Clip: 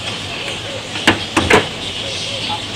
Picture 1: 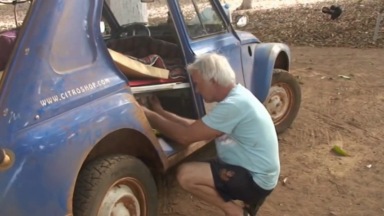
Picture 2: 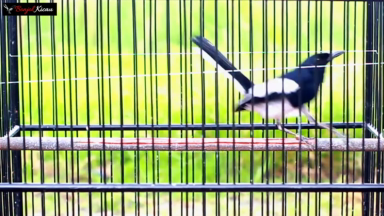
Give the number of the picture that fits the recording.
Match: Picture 1